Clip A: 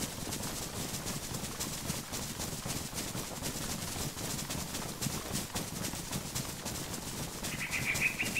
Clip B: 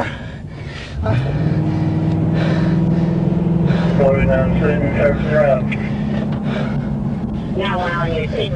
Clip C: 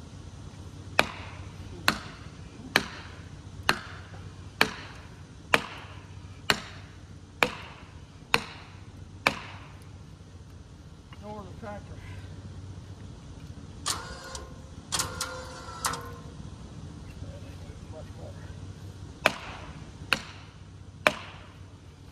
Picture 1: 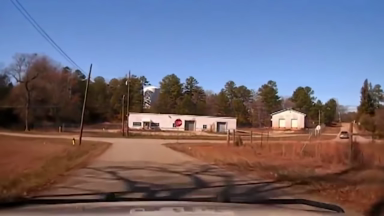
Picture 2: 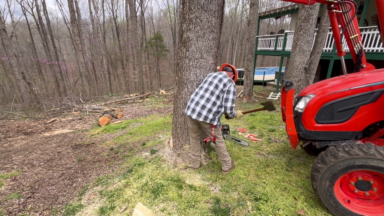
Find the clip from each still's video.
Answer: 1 B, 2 C